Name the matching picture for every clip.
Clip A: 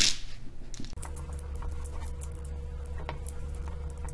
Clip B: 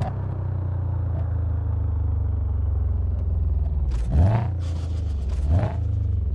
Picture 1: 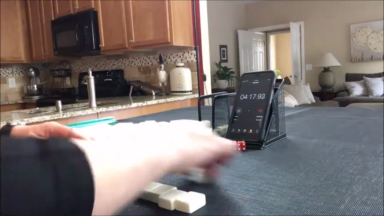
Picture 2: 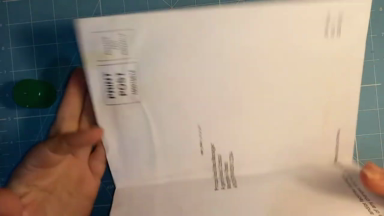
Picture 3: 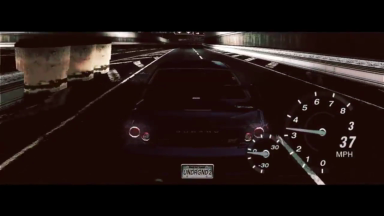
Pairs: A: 1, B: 3